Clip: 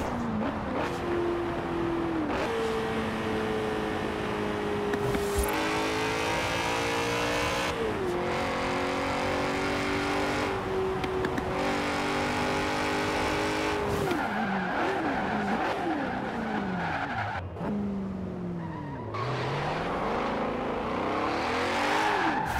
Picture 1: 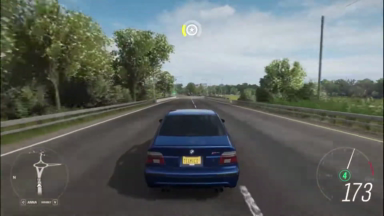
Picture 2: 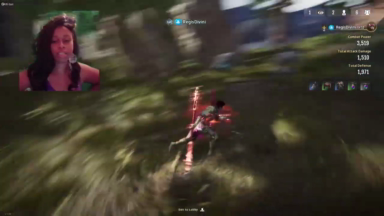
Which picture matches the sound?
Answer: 1